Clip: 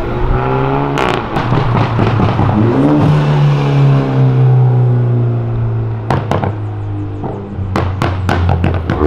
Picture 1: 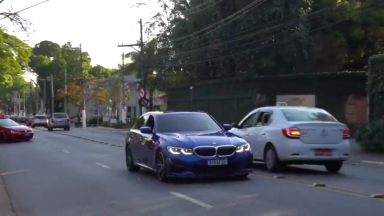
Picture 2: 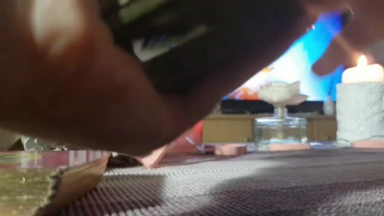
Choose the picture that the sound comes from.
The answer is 1